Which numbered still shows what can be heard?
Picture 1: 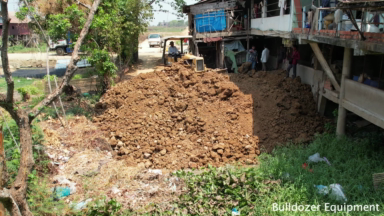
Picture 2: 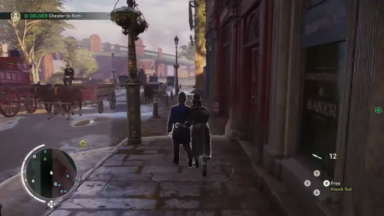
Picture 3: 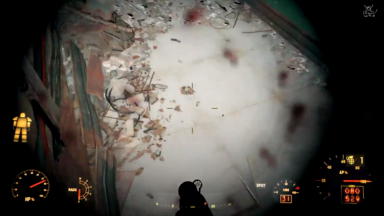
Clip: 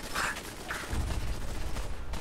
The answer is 3